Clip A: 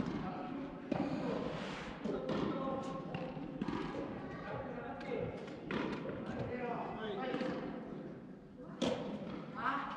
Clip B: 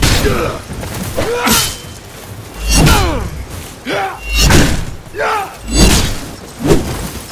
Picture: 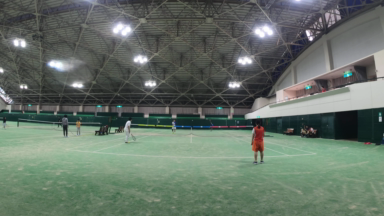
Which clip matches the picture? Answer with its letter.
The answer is A